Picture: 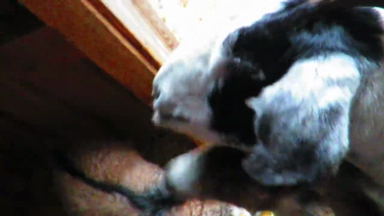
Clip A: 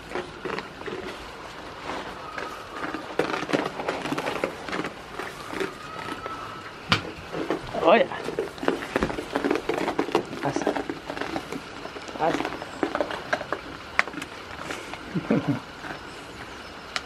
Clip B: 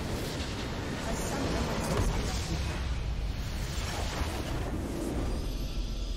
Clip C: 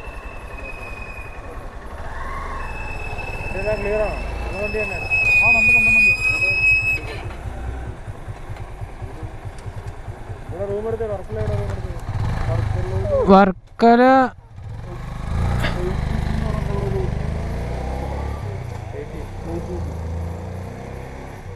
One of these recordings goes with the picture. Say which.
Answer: A